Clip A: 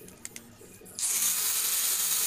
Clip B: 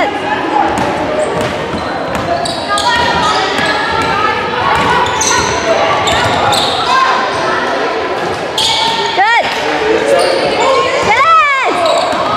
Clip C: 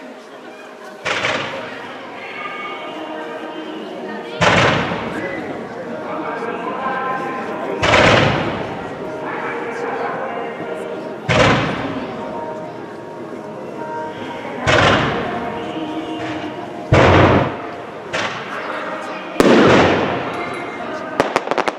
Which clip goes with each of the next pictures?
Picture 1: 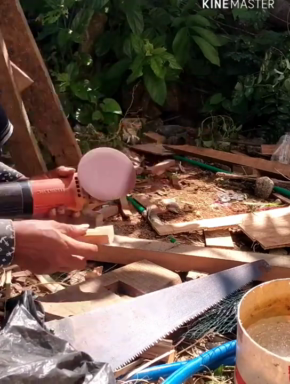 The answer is A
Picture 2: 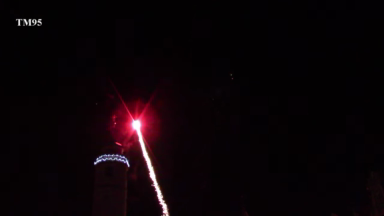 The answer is C